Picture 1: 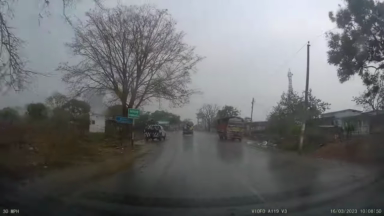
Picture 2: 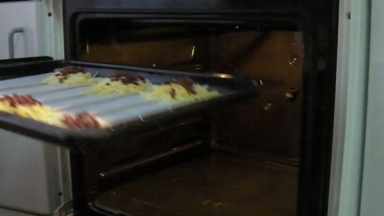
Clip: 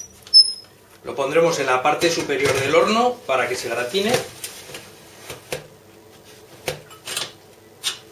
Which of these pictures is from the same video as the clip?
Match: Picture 2